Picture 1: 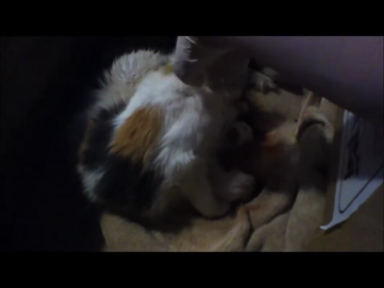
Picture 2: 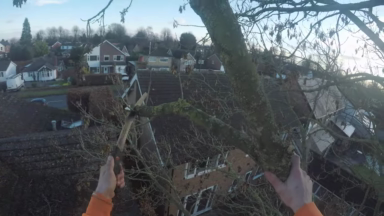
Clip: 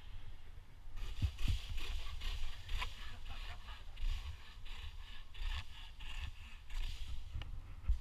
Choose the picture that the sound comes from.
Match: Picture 2